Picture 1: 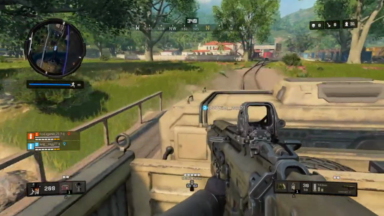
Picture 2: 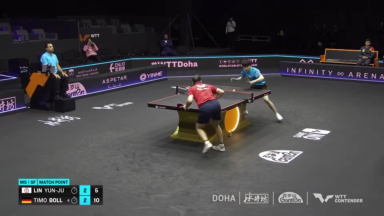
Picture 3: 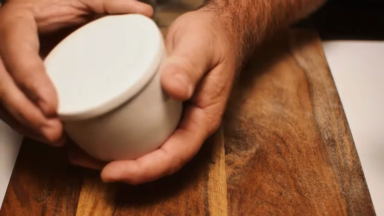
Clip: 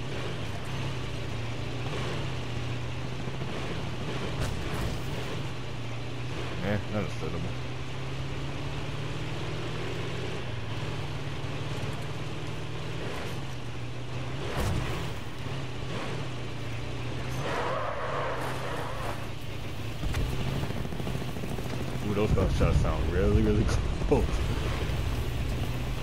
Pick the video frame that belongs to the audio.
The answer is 1